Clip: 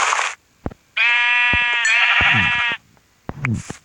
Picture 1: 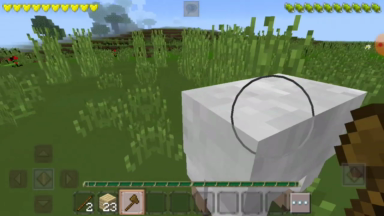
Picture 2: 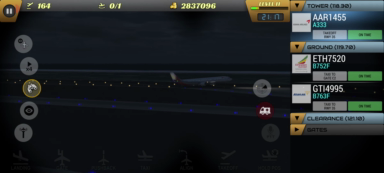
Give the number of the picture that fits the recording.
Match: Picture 1